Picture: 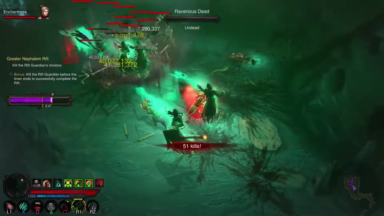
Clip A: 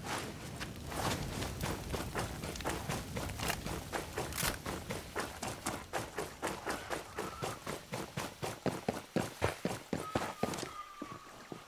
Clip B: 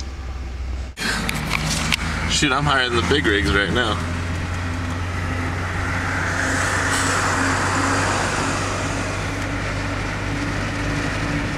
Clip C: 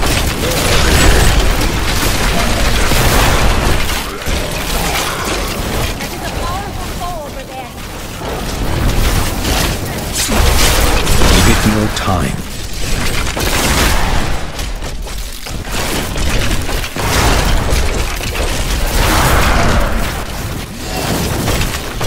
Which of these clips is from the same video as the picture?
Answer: C